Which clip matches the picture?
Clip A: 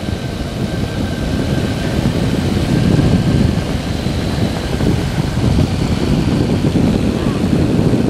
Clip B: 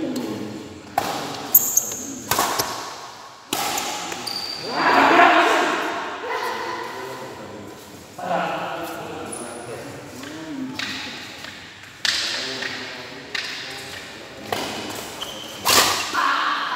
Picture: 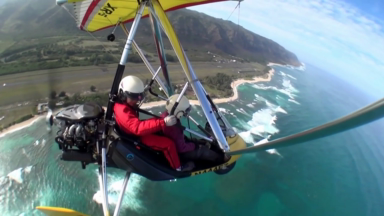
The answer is A